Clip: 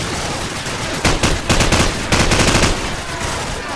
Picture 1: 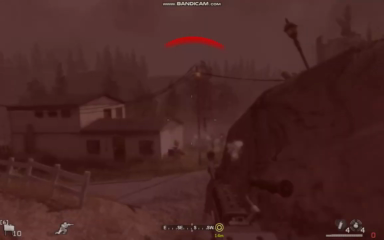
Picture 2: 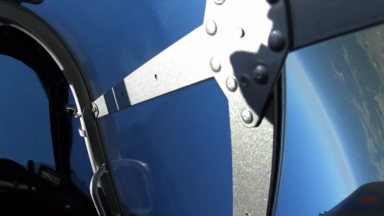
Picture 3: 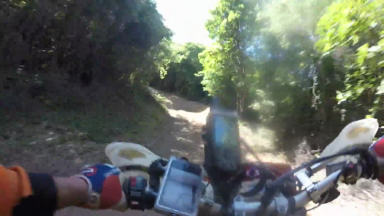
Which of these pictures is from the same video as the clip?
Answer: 1